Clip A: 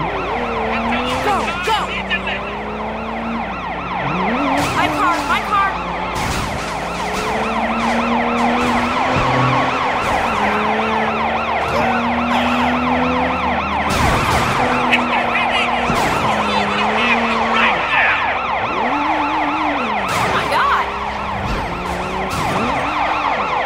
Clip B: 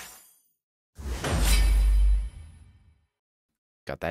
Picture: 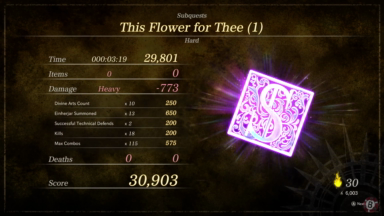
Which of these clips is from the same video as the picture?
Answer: B